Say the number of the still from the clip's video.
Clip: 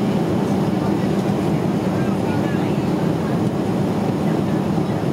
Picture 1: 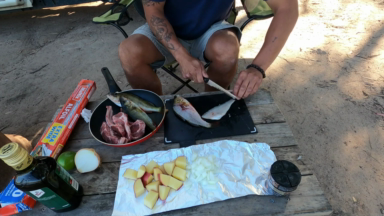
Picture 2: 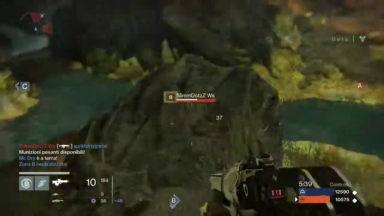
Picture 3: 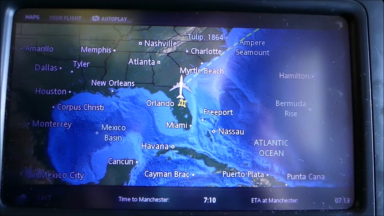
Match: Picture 3